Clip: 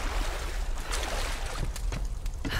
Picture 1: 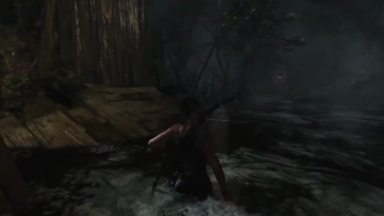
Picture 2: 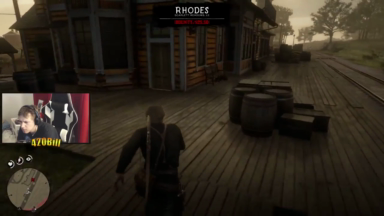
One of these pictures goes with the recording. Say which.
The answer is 1